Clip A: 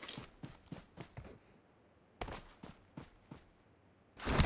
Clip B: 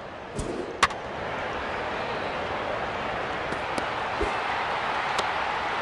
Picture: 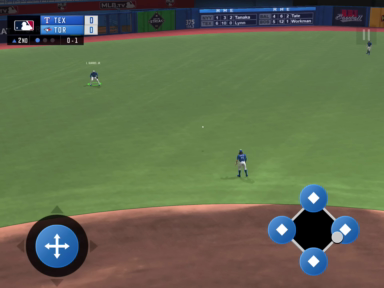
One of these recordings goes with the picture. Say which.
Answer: B